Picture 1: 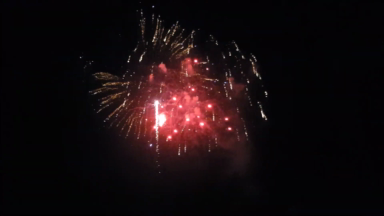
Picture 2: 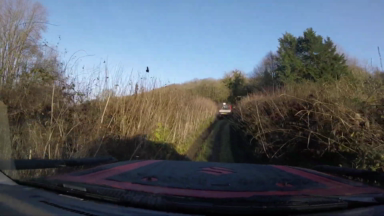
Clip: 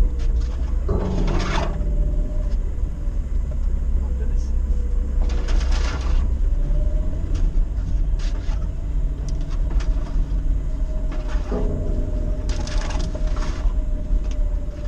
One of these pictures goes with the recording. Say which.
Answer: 2